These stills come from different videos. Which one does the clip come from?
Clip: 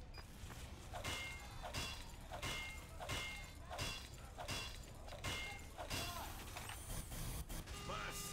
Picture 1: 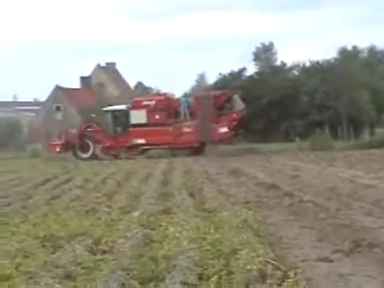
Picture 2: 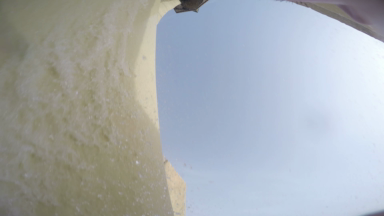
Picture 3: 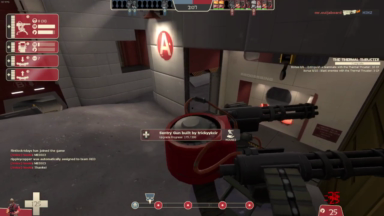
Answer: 3